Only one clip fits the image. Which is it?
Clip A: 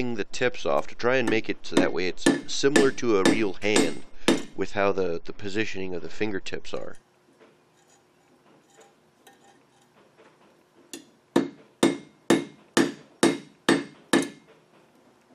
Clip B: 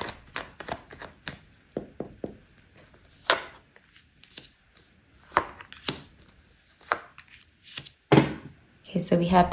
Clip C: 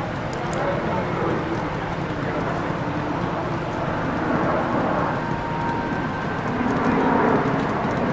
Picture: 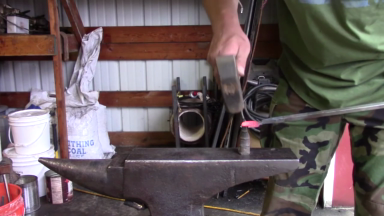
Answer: A